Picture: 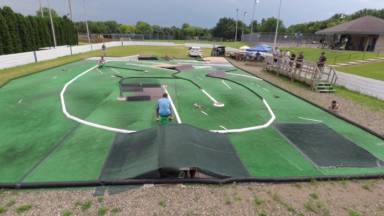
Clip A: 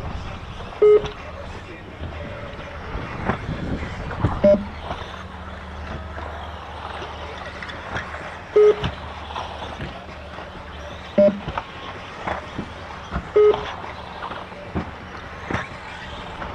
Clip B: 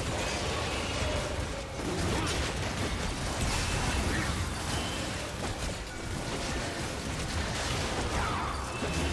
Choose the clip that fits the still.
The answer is A